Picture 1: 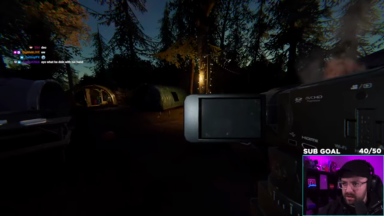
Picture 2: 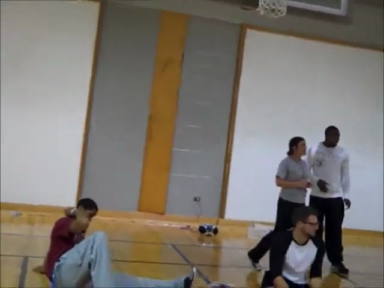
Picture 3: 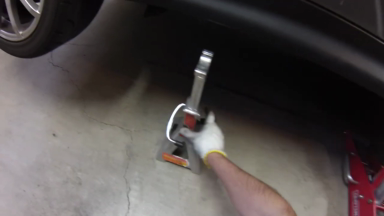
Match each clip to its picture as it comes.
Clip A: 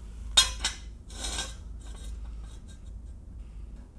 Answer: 3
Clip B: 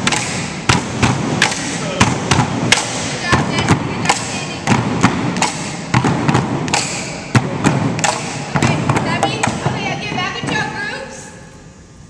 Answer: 2